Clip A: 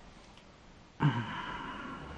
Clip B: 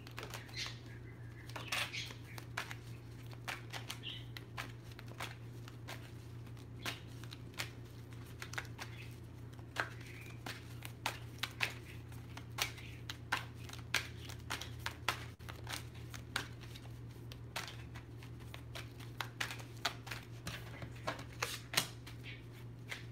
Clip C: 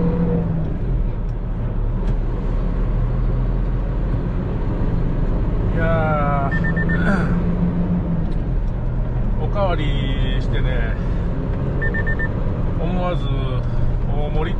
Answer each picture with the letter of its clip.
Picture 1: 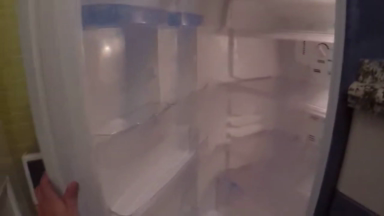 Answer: A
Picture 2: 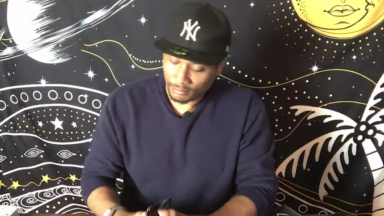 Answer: B